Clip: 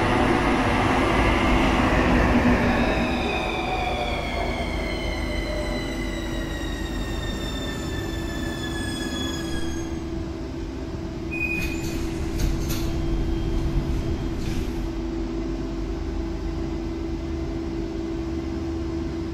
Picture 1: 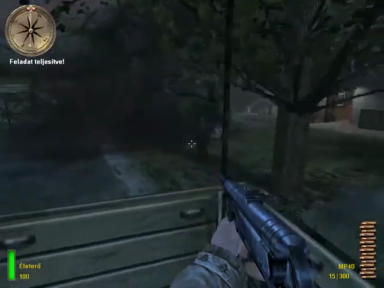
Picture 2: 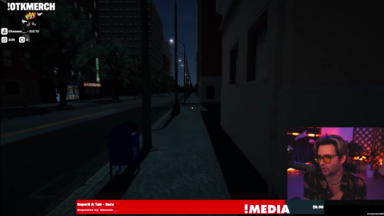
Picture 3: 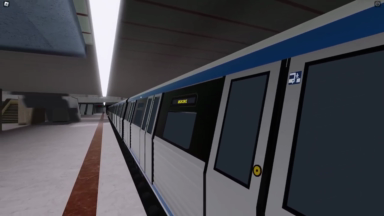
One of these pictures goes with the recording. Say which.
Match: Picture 3